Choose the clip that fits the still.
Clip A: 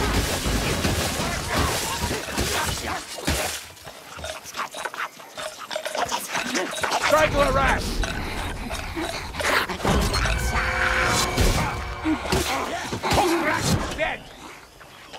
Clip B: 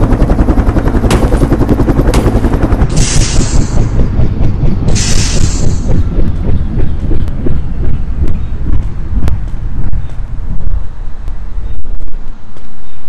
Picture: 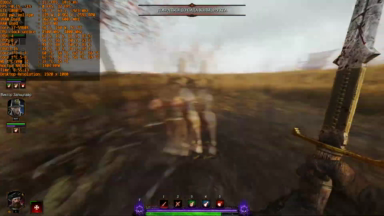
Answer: A